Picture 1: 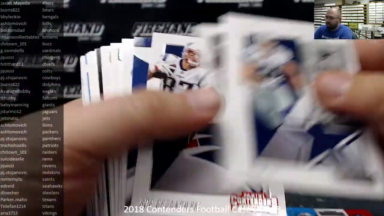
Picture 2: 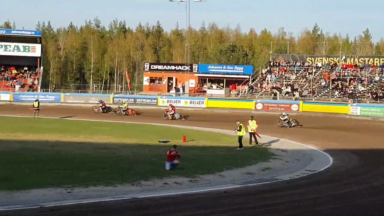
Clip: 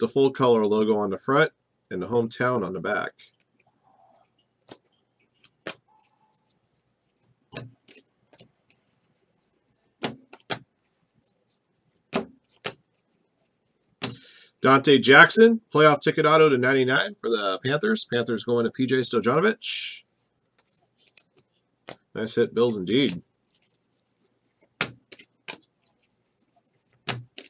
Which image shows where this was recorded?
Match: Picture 1